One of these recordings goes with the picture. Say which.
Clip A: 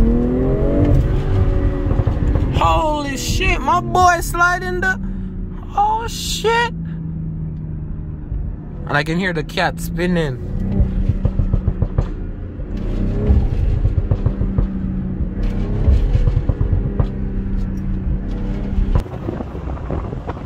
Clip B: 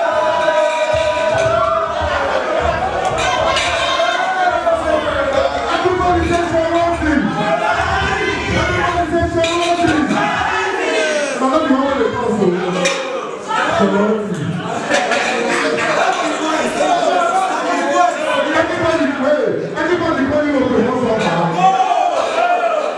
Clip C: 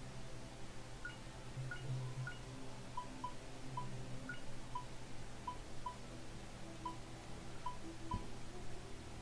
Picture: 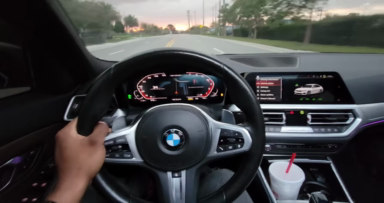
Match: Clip A